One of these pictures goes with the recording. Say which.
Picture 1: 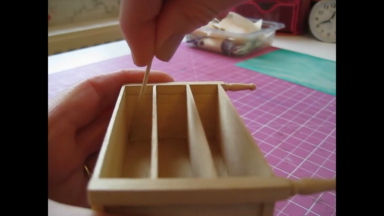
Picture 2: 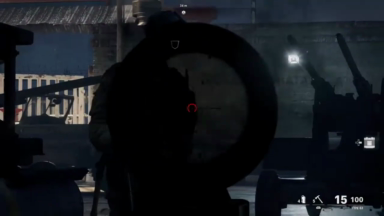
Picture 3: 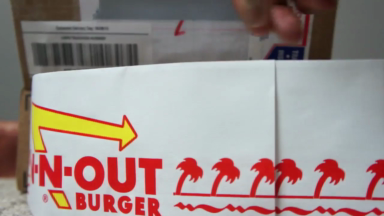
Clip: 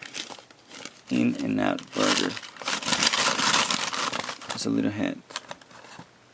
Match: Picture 3